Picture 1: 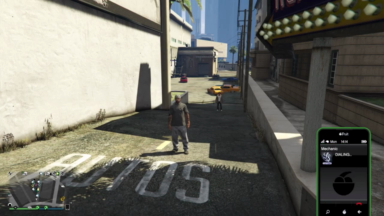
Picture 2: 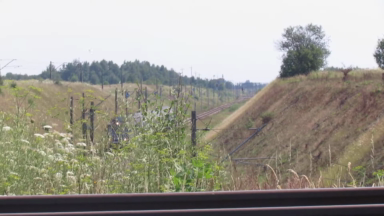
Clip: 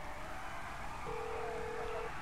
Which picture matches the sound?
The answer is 1